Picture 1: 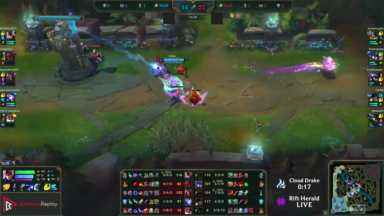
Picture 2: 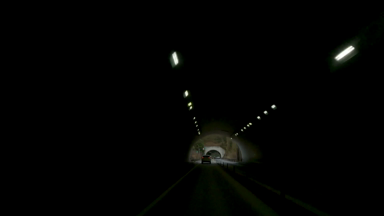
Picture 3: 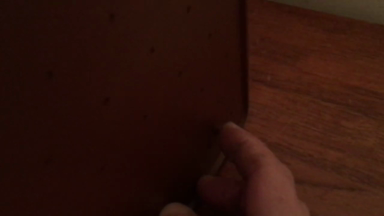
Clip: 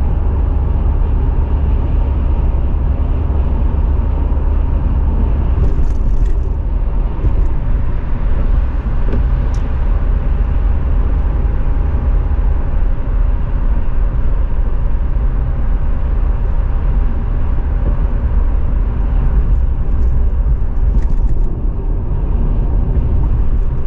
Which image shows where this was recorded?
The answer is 2